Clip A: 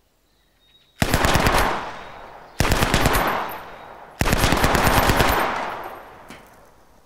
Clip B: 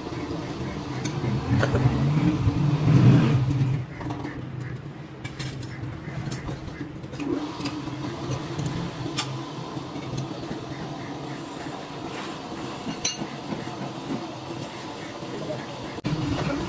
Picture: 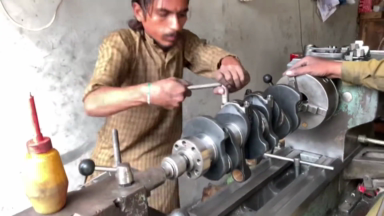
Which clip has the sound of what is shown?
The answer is B